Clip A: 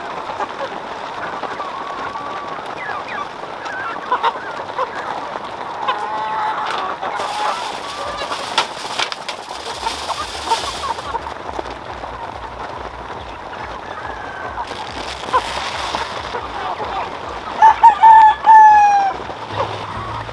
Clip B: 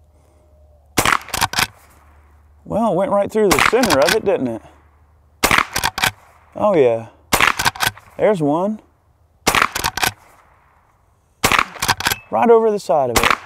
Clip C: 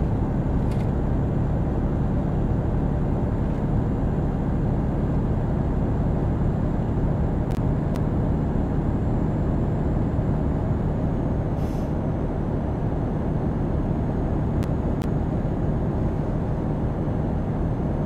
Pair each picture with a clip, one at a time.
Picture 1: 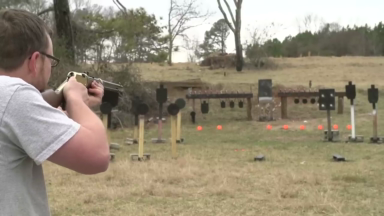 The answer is B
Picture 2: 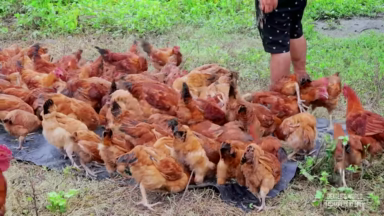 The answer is A